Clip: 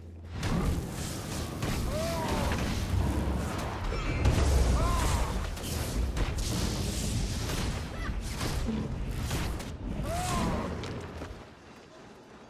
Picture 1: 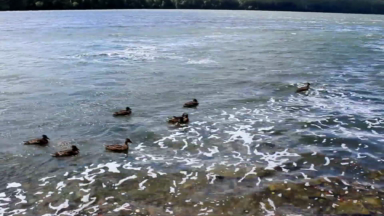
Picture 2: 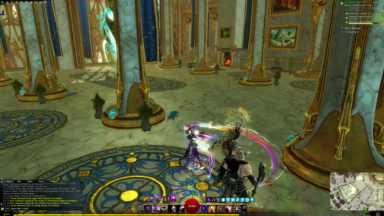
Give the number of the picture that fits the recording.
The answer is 2